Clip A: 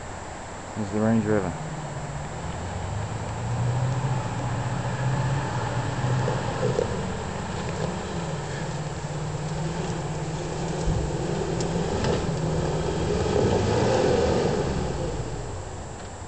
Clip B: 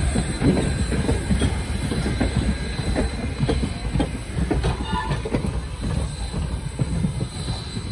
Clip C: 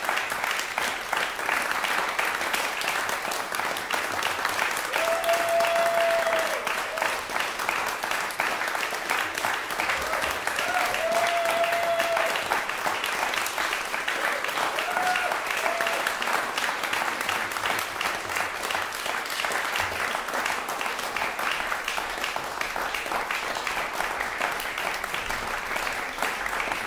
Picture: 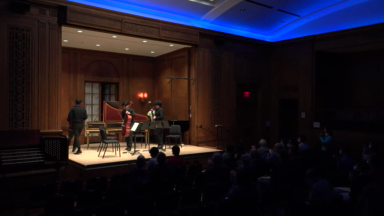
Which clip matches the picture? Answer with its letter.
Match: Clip C